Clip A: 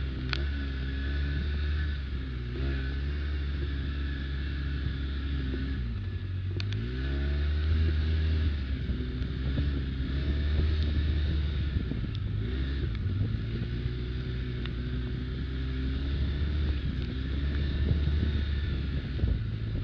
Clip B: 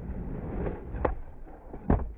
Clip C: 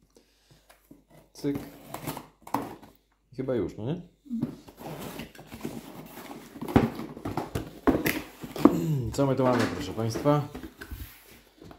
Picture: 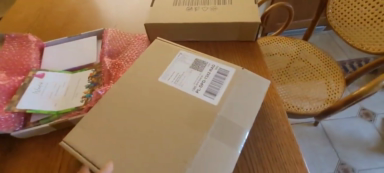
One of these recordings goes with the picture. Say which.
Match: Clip C